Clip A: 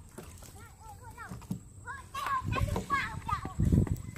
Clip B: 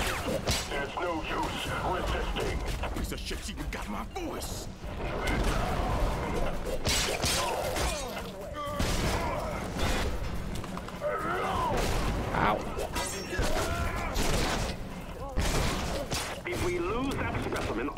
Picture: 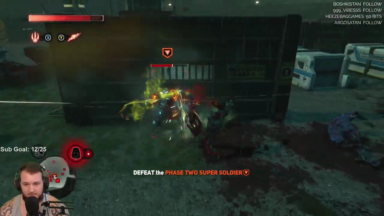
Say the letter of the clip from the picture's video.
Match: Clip B